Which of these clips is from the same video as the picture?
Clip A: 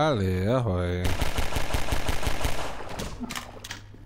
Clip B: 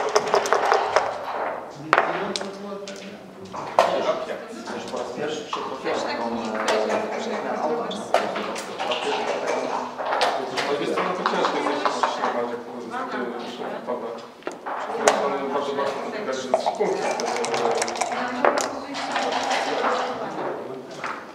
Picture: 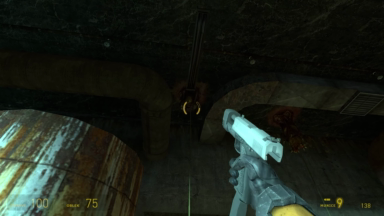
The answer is A